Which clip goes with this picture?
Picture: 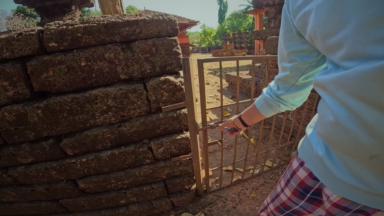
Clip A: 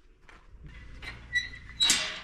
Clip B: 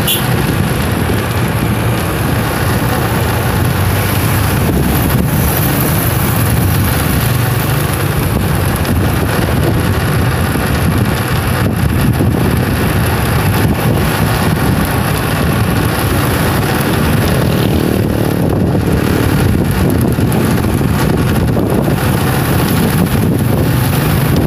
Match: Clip A